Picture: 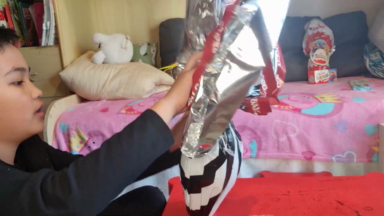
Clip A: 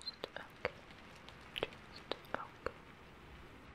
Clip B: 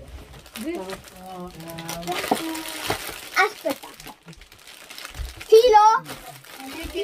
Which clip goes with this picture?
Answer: B